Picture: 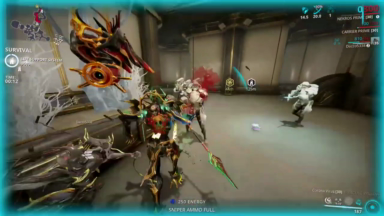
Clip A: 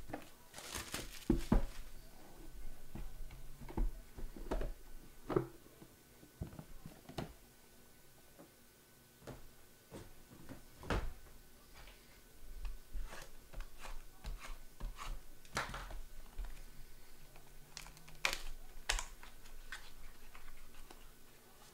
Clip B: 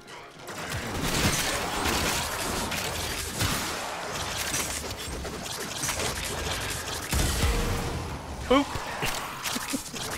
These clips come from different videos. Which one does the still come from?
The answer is B